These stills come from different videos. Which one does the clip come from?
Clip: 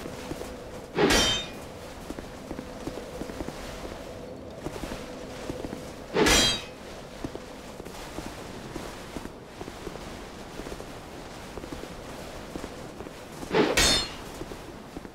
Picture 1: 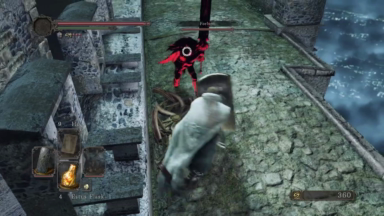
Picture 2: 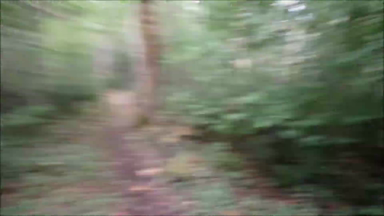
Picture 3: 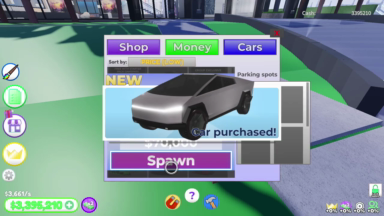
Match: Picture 1